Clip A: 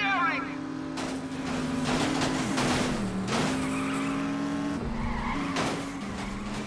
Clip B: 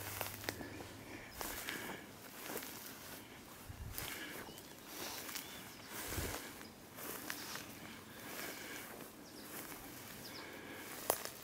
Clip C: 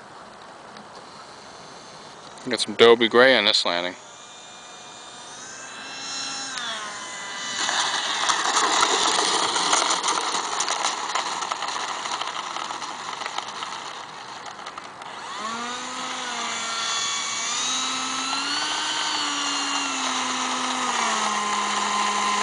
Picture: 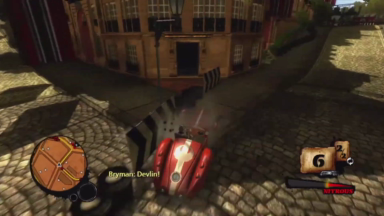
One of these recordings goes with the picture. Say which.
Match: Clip A